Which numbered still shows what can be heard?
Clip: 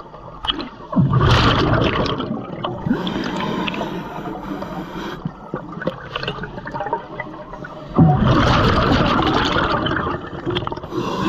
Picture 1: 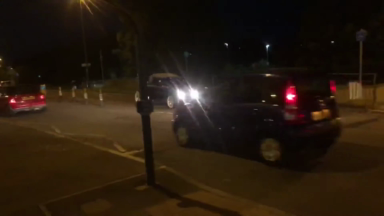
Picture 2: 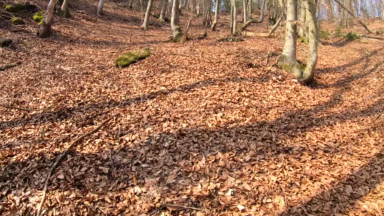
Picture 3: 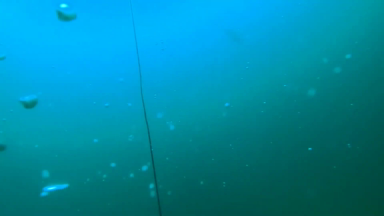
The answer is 3